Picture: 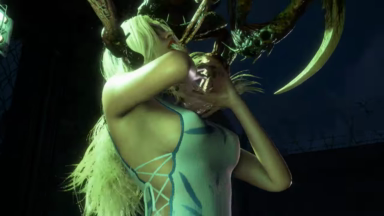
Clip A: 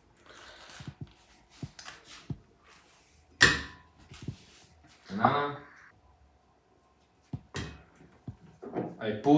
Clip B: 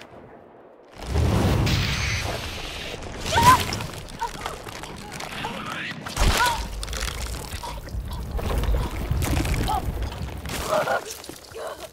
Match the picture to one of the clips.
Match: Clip B